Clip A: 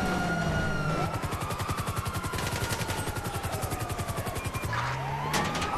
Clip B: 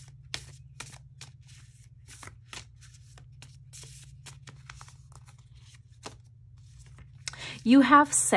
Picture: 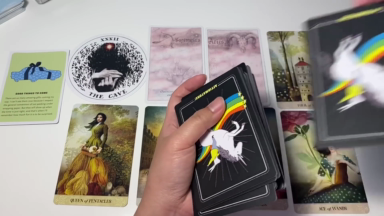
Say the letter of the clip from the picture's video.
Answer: B